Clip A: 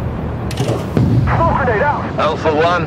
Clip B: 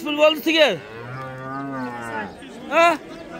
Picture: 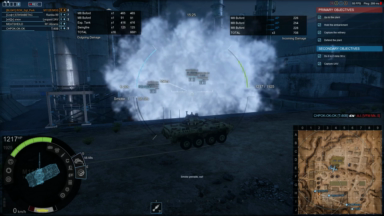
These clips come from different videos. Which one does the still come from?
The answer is A